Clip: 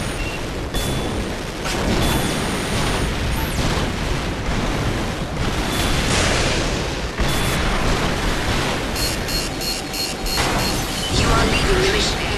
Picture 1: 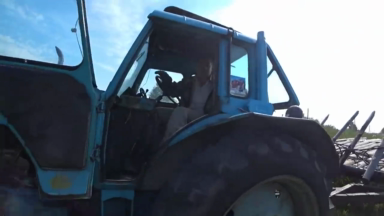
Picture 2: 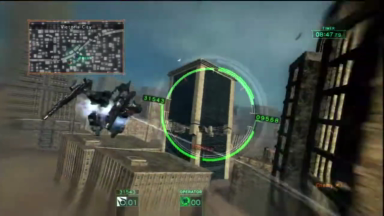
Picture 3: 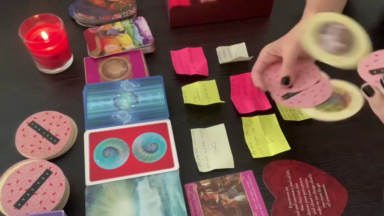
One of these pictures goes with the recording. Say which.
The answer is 2